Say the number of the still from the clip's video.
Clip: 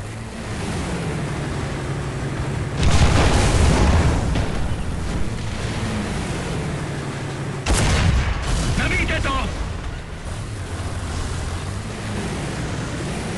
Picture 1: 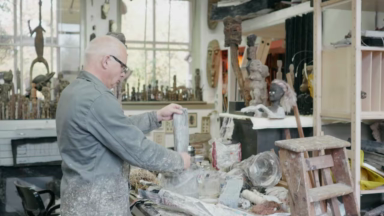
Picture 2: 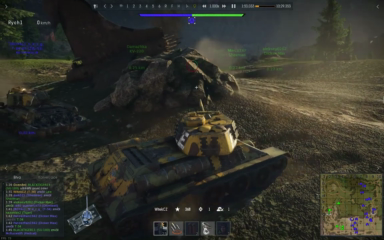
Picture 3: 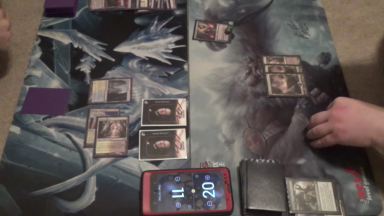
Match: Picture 2